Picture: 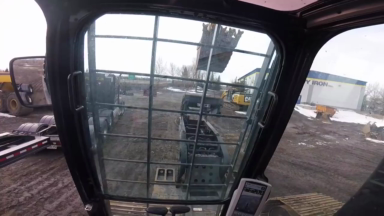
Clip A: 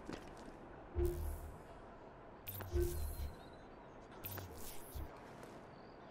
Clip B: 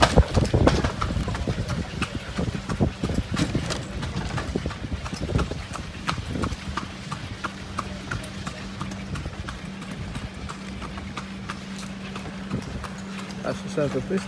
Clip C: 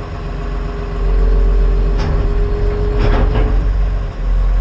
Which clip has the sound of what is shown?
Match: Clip C